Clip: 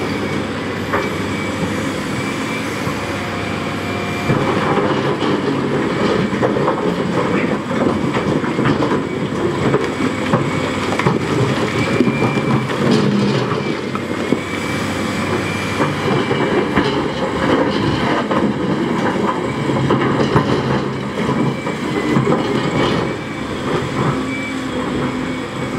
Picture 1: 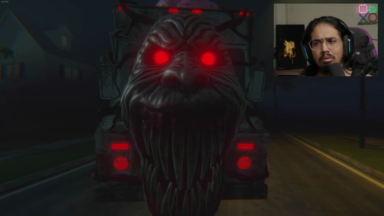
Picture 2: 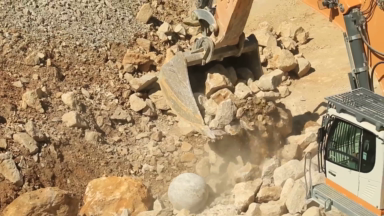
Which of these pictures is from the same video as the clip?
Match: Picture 2